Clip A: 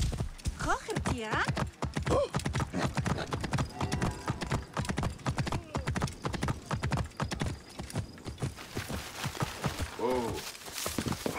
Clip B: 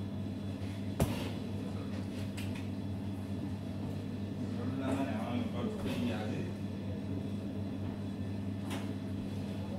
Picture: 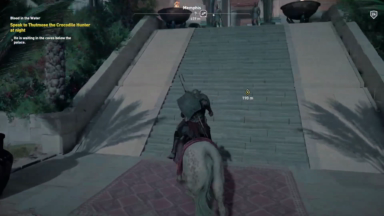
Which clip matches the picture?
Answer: A